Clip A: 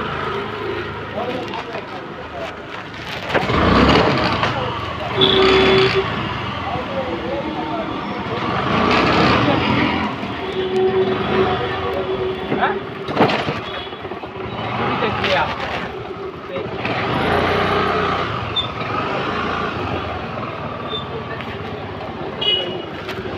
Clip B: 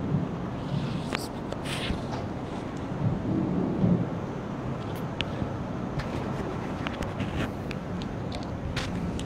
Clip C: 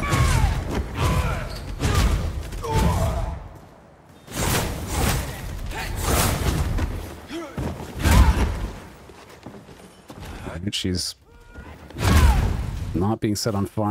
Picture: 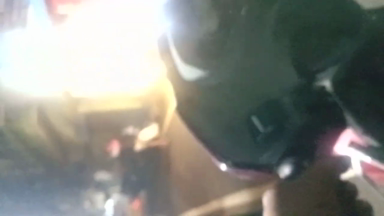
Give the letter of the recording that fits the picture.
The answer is A